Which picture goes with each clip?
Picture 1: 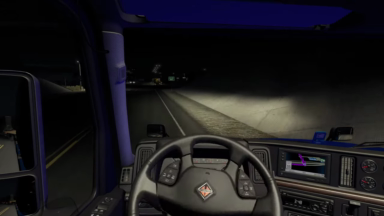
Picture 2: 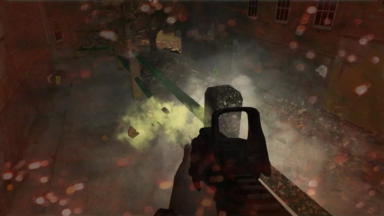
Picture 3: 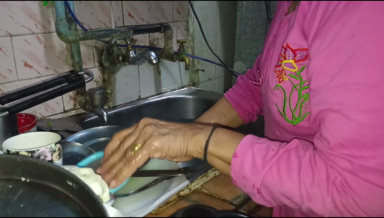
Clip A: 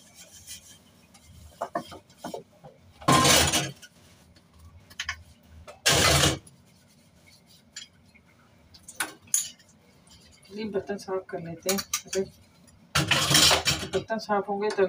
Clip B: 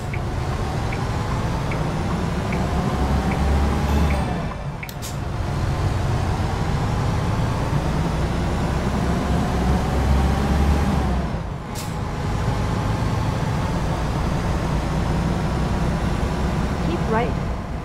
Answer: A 3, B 1